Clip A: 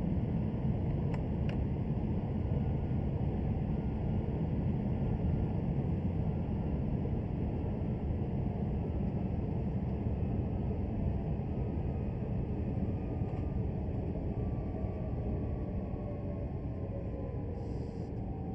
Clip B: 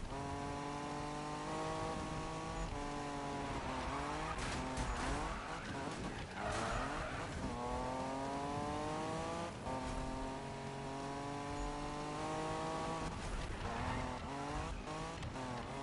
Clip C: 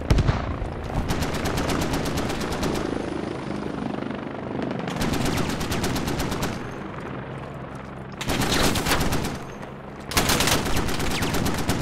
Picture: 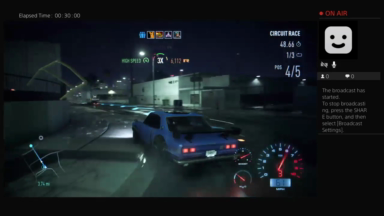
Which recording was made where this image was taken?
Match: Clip B